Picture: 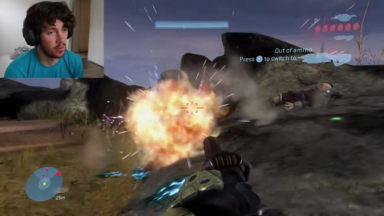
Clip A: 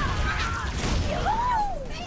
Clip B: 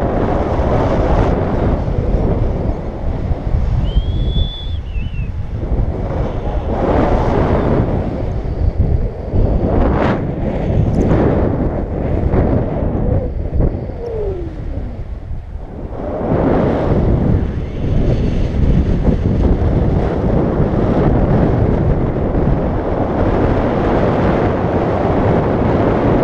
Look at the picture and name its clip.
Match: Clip A